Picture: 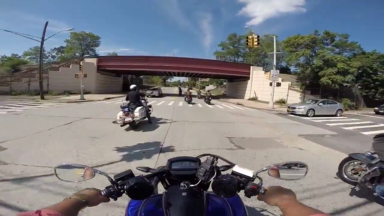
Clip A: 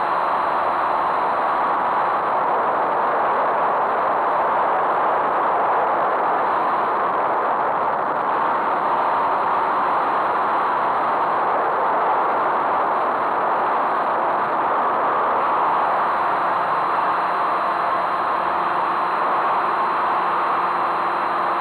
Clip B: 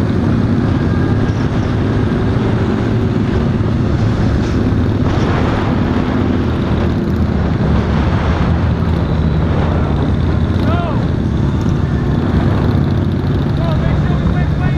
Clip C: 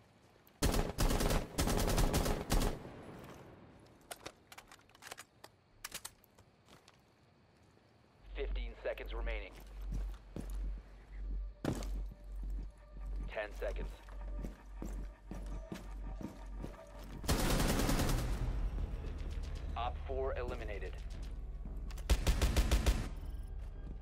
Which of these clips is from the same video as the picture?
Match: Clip B